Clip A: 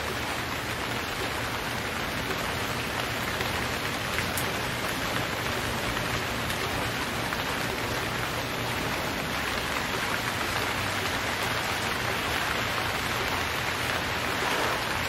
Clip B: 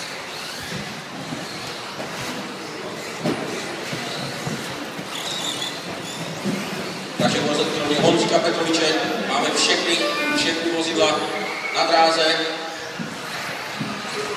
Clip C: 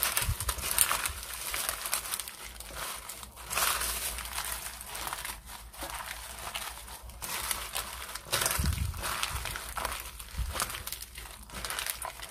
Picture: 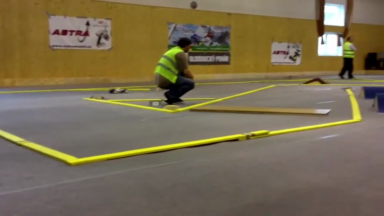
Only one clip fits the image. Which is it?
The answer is B